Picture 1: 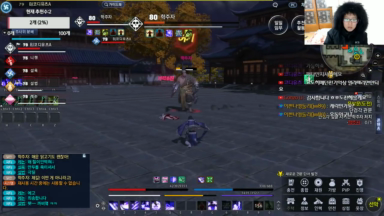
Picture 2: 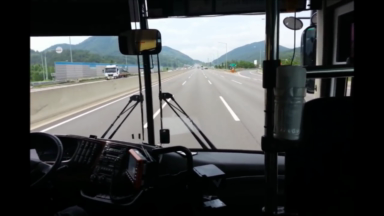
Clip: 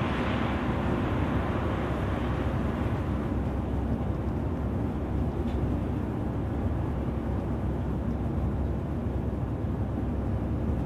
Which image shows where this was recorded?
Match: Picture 2